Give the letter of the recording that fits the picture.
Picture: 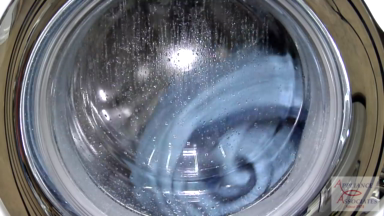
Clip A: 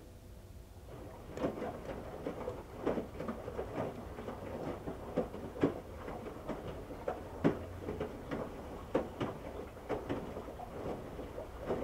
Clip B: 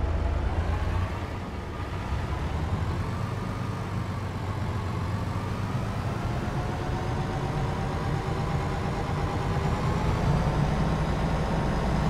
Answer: A